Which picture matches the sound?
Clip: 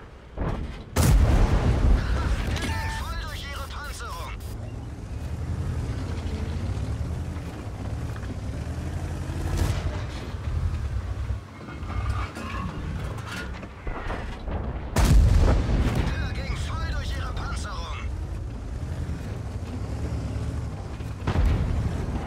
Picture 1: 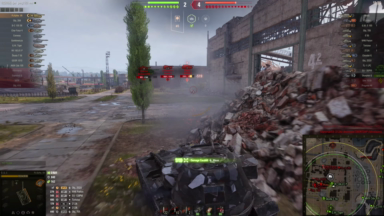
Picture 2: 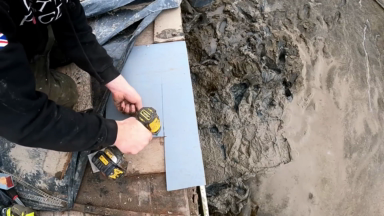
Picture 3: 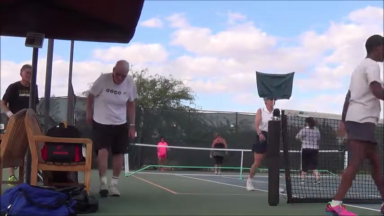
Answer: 1